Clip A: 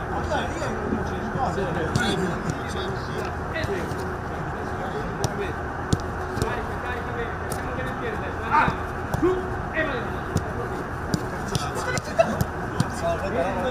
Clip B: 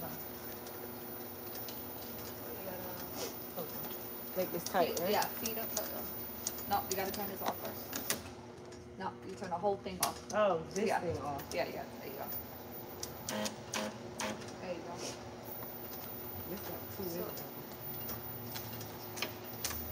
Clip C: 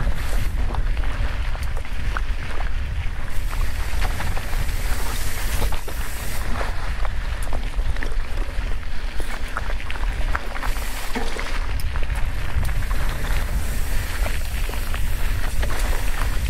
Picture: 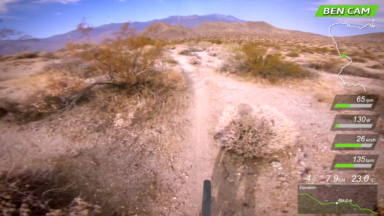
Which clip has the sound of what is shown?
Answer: C